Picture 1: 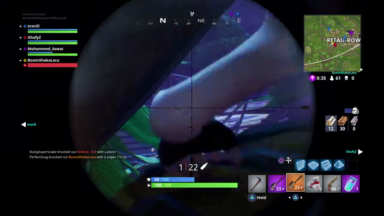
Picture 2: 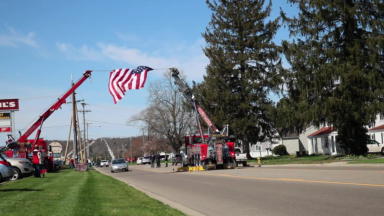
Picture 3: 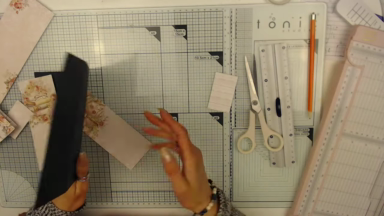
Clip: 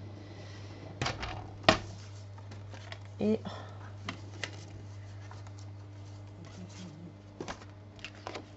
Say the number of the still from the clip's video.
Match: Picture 3